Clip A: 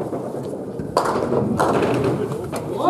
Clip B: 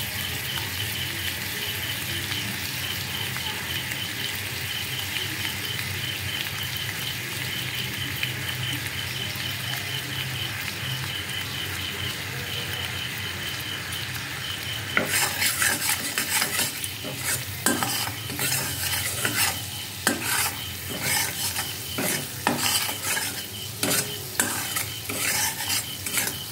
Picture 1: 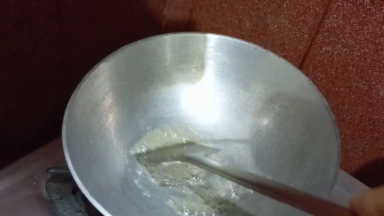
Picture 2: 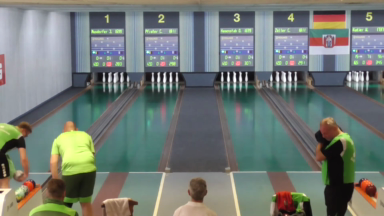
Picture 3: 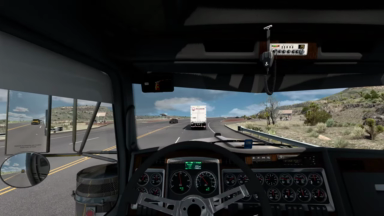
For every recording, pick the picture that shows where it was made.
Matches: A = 2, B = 1